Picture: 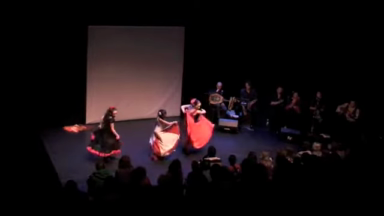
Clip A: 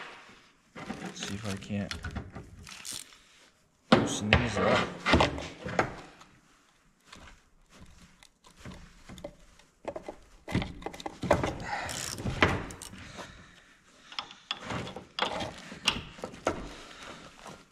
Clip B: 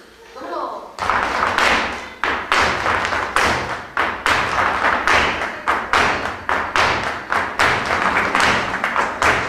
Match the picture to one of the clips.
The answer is B